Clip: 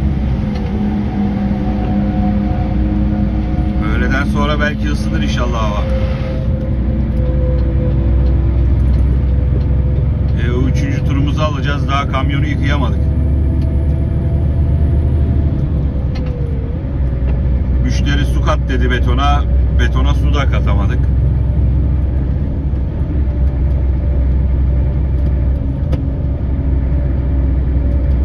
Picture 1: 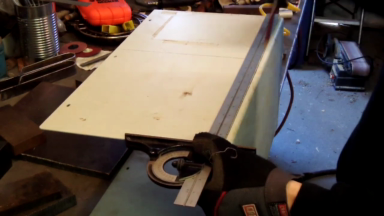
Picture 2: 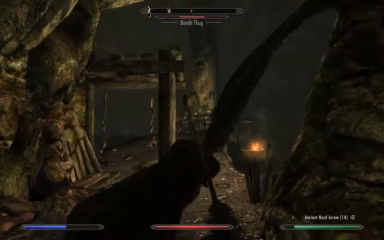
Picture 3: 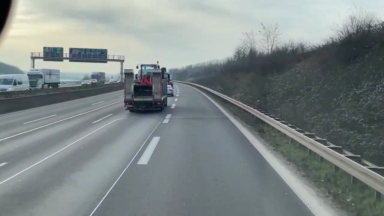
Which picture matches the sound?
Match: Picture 3